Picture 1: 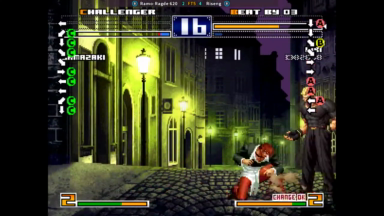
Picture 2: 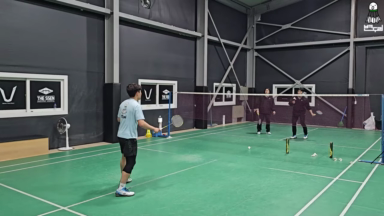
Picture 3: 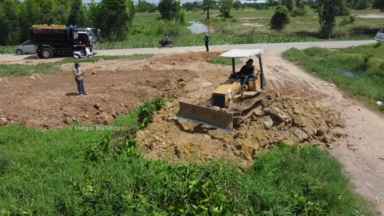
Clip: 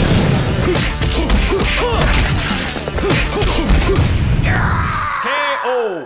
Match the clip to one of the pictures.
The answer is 1